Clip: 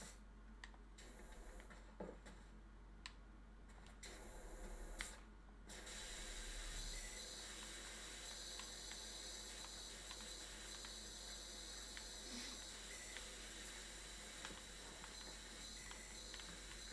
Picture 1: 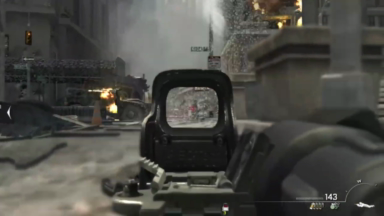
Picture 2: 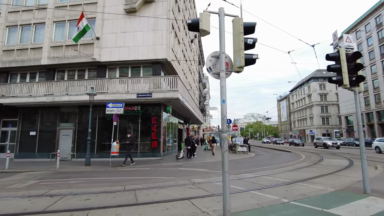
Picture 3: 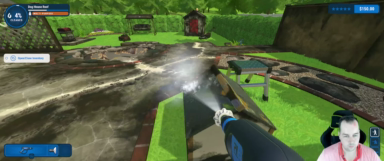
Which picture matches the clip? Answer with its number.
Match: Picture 3